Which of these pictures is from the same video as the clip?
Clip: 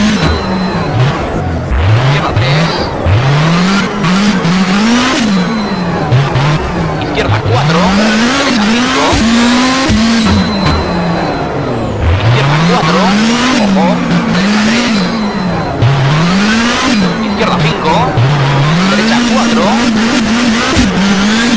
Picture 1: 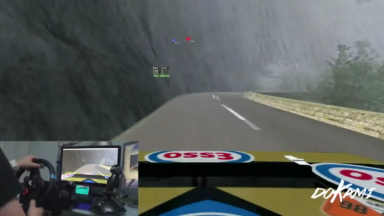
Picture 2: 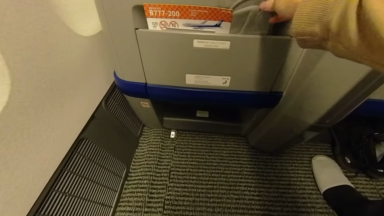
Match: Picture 1